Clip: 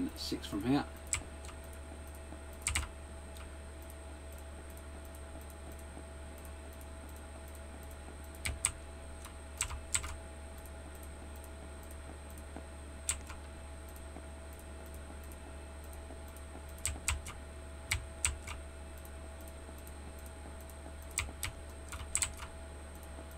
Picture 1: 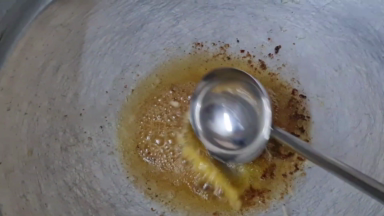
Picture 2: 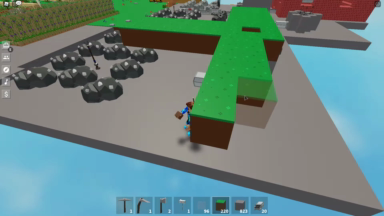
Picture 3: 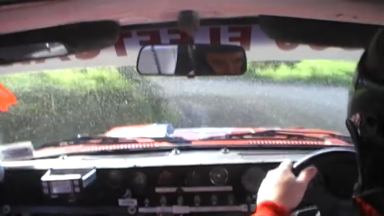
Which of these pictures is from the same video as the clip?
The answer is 2